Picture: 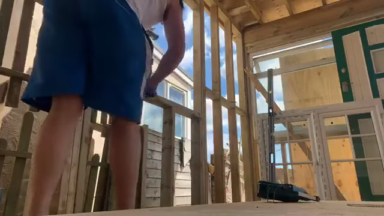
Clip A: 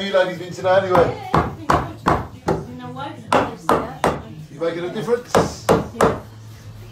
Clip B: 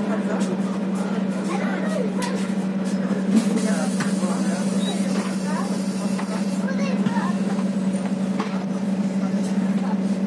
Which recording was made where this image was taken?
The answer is A